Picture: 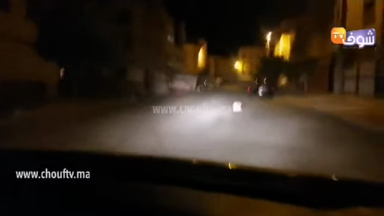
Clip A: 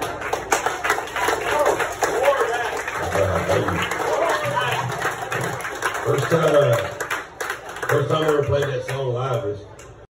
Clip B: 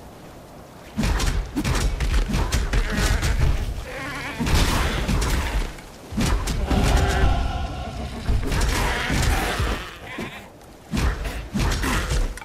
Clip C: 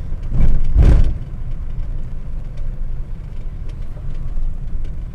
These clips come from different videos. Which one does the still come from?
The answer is C